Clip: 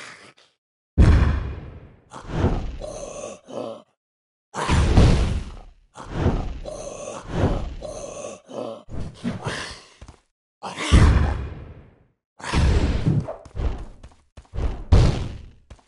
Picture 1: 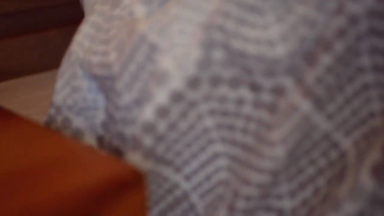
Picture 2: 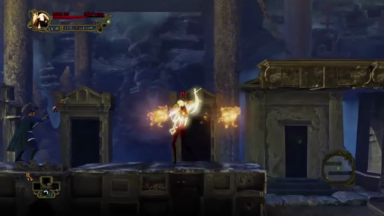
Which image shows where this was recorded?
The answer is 2